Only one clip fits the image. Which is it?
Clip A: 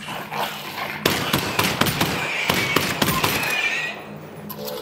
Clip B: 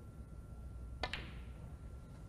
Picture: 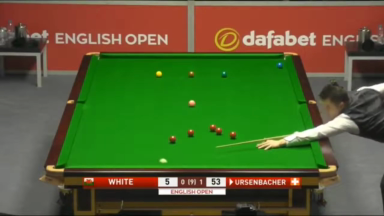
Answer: B